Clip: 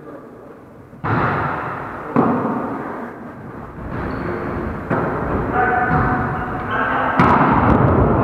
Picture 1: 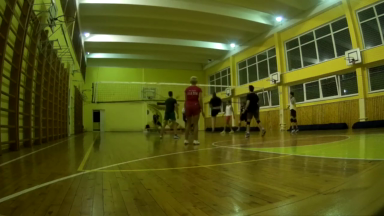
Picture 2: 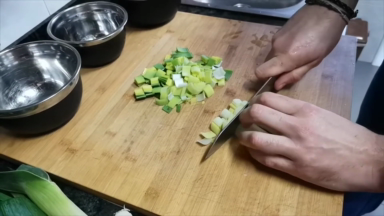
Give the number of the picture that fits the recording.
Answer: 1